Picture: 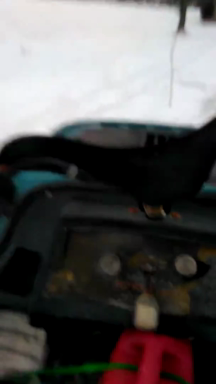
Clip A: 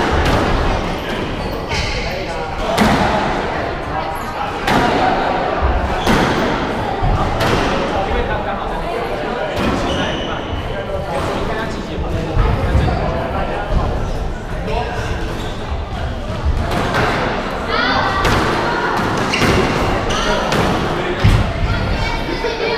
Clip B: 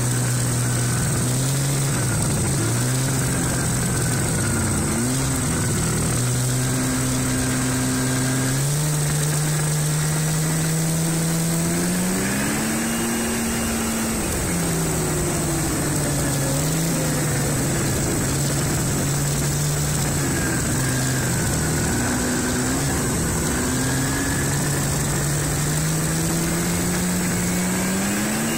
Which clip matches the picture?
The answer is B